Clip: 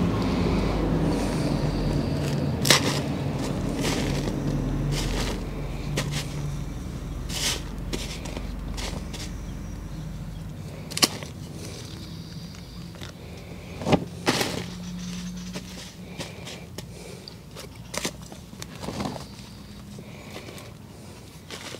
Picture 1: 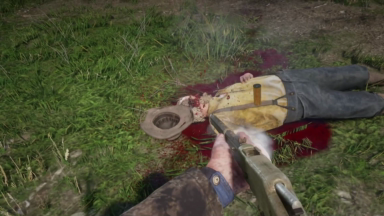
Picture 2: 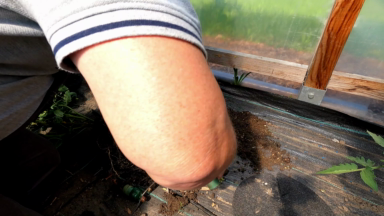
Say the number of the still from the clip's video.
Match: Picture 2